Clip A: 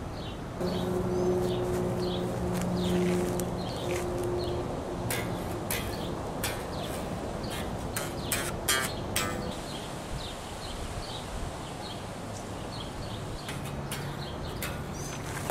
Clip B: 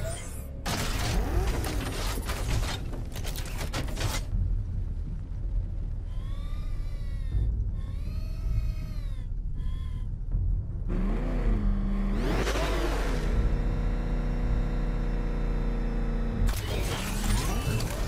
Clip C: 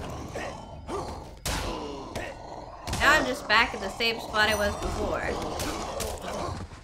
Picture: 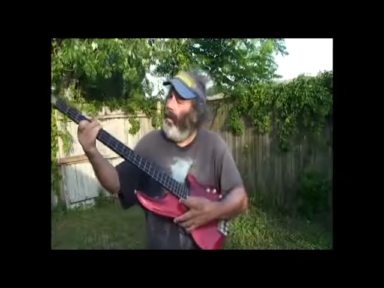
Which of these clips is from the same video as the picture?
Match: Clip A